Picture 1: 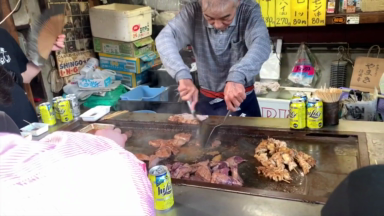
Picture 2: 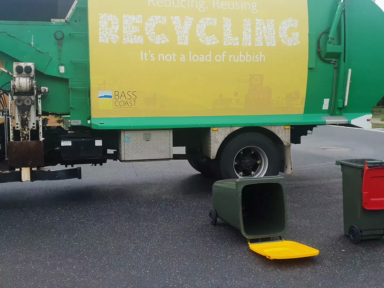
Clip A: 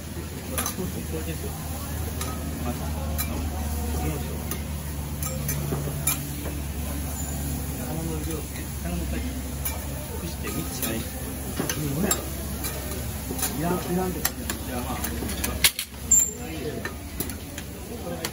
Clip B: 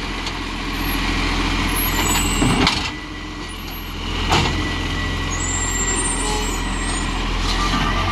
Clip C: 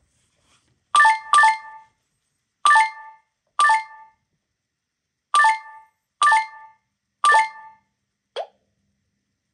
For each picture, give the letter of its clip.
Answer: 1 A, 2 B